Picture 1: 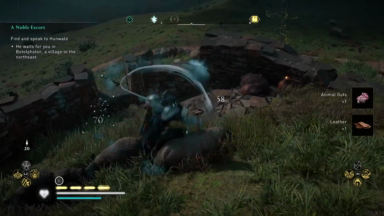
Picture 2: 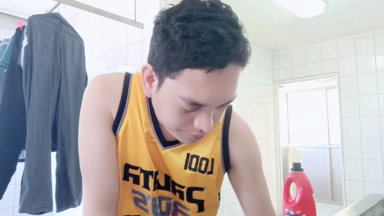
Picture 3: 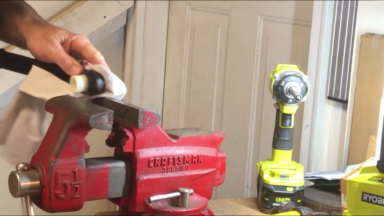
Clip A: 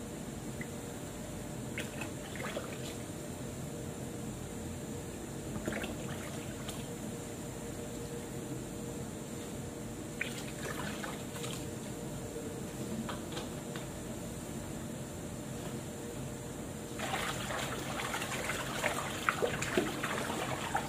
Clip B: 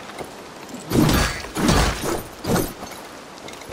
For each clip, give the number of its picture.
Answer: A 2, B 1